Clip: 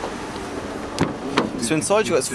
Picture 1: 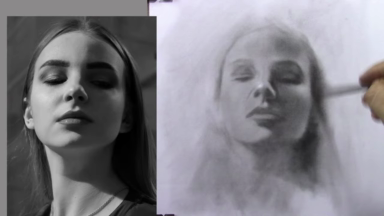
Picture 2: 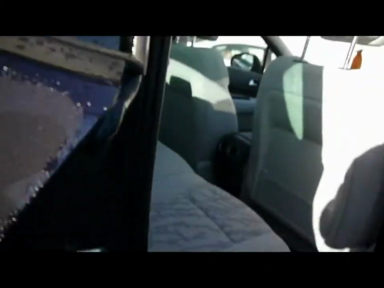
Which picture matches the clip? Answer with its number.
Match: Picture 2